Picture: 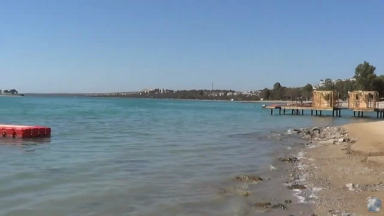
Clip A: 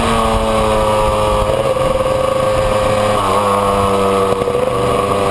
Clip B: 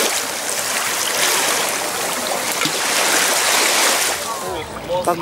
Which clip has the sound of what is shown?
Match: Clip B